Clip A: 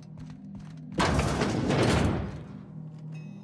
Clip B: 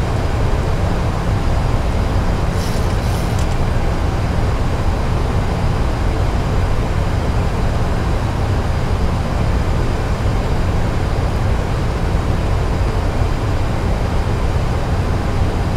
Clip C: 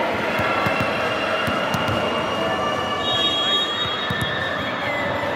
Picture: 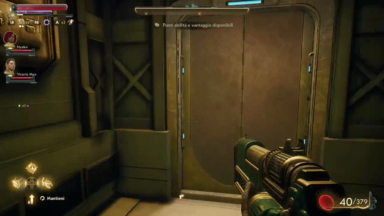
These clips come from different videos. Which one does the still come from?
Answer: A